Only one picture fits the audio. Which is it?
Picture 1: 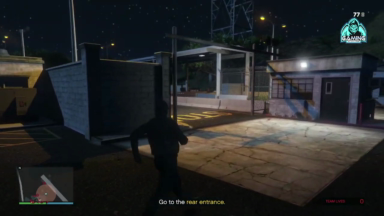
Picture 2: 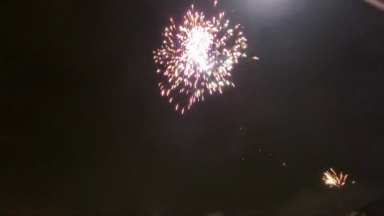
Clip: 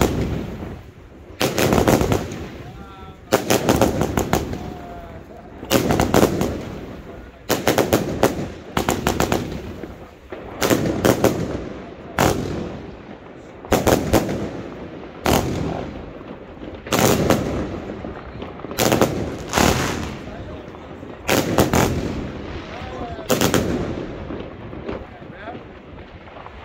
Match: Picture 2